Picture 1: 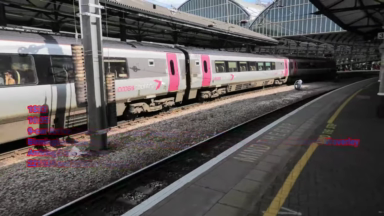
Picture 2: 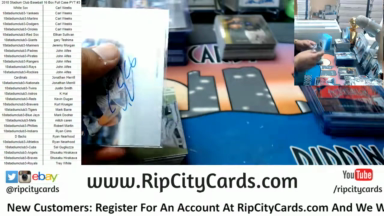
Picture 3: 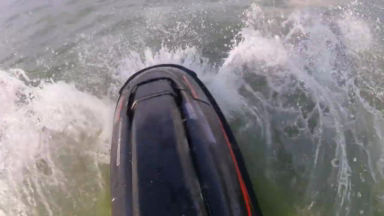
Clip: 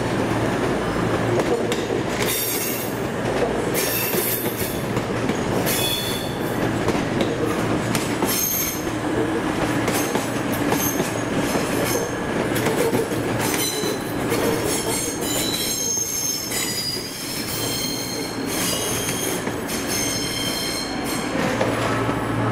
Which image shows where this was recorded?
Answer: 1